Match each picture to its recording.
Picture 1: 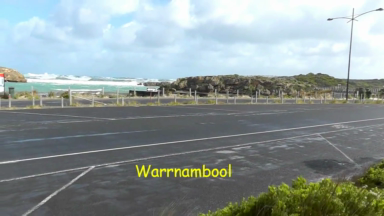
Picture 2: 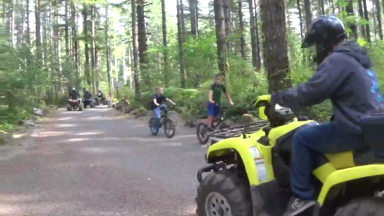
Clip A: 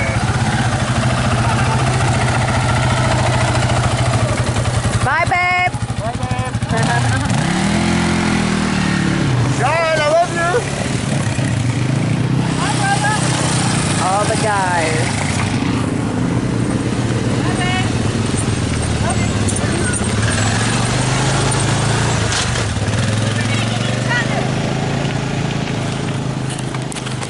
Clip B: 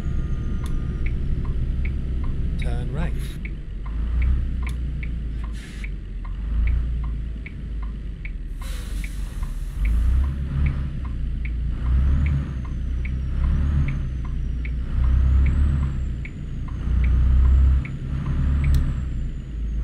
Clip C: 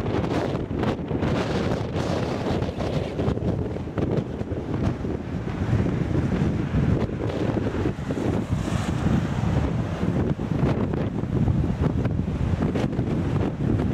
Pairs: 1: C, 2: A